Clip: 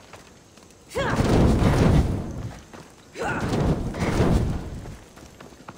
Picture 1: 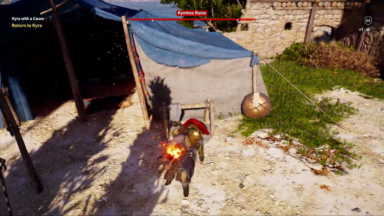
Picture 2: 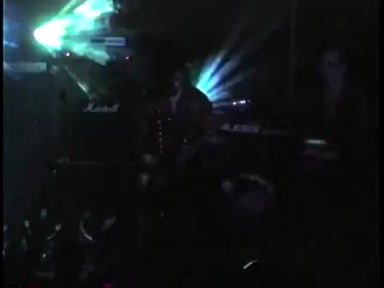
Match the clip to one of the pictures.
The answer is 1